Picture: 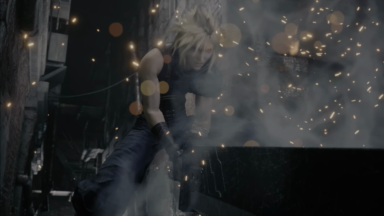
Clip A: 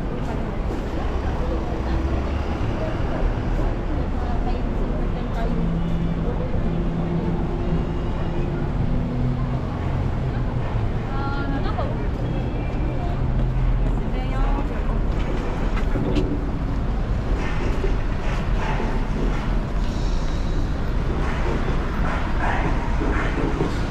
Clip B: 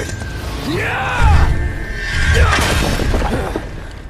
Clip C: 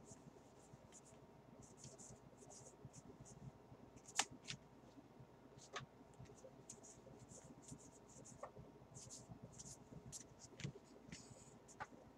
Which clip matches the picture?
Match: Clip B